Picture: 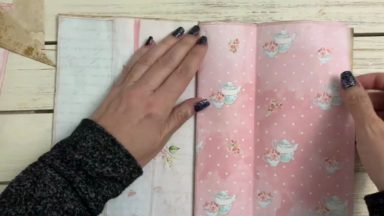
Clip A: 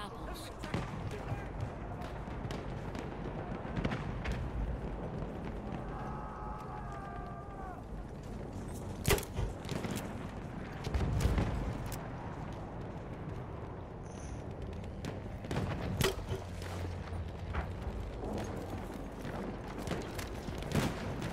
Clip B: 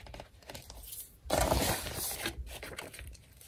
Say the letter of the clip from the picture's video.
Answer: B